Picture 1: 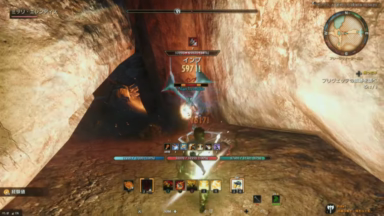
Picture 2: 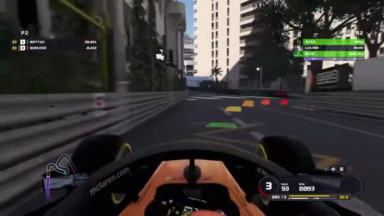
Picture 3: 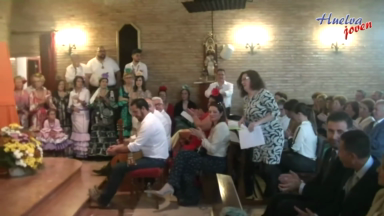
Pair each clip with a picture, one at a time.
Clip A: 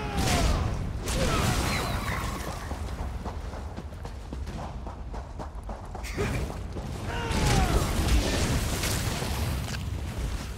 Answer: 1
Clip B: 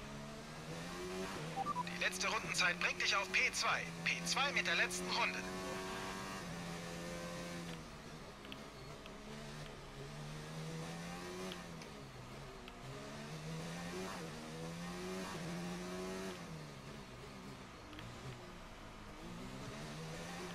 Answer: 2